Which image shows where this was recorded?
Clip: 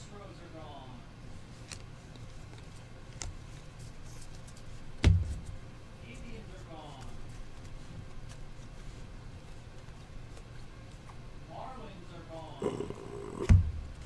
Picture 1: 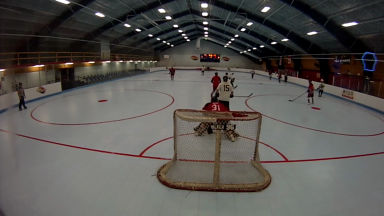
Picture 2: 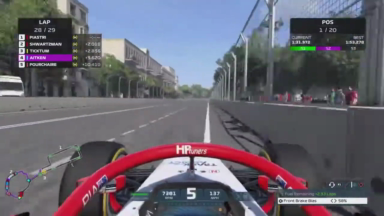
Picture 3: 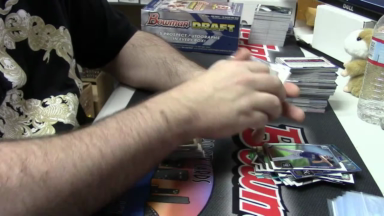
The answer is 3